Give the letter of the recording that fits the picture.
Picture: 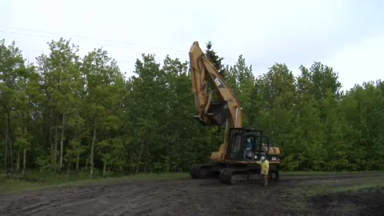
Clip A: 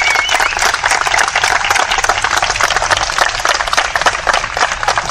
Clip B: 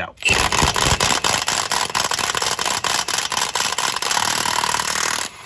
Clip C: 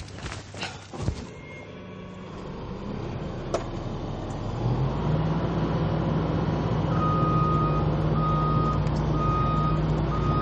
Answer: C